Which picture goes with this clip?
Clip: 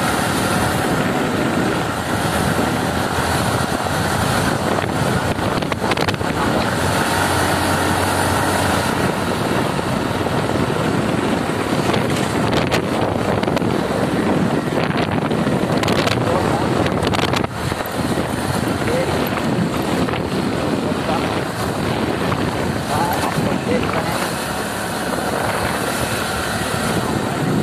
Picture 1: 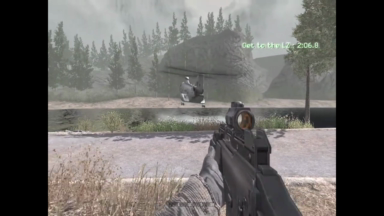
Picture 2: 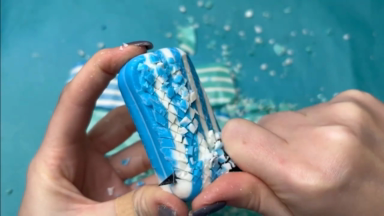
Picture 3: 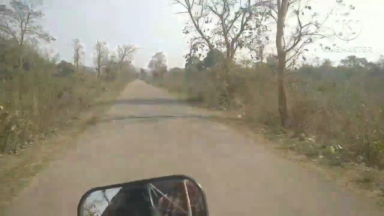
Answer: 3